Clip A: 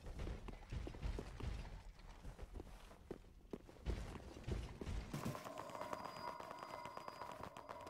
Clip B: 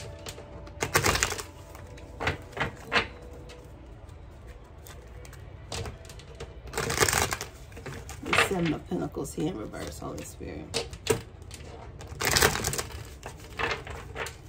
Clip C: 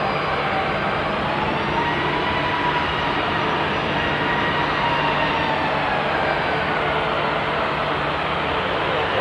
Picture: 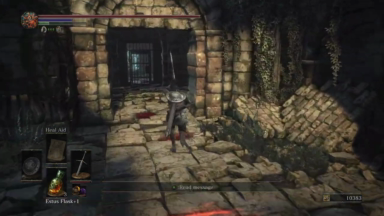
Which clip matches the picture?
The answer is A